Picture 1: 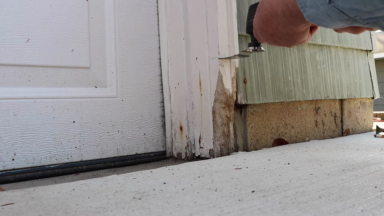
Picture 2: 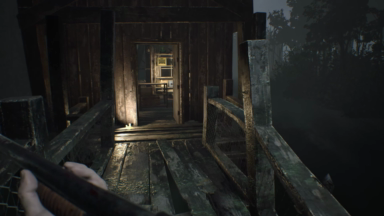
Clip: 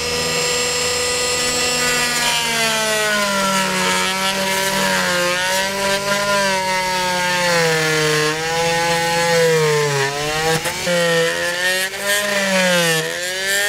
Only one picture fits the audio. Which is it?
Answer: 1